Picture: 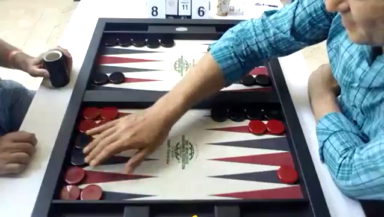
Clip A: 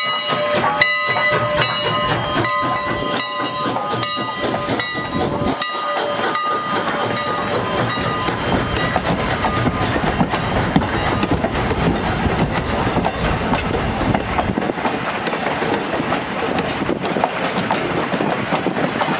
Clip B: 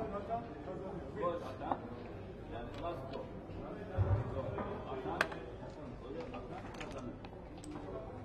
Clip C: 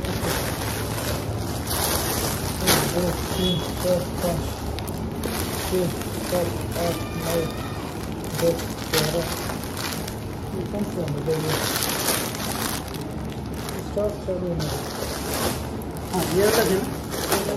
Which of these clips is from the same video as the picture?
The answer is B